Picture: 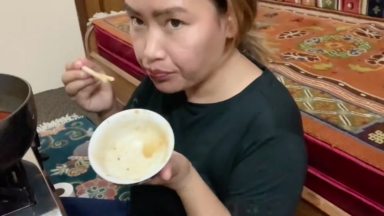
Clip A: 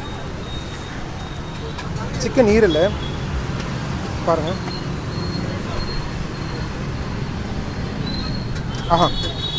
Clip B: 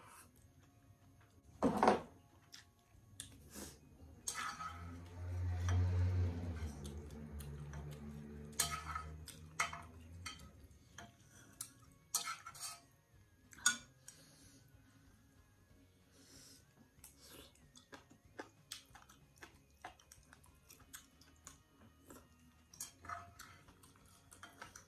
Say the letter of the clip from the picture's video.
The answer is B